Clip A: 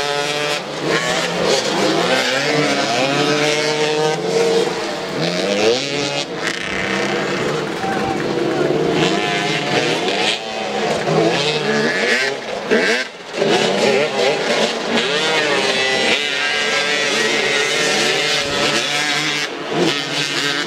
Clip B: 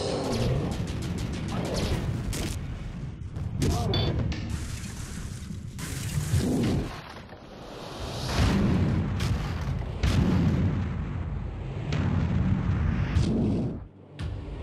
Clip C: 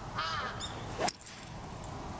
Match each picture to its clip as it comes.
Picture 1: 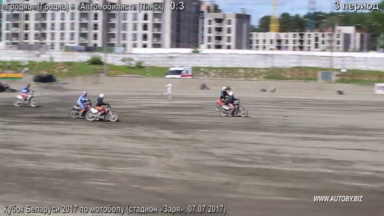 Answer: A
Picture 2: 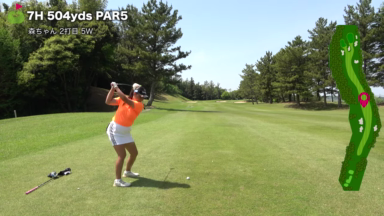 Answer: C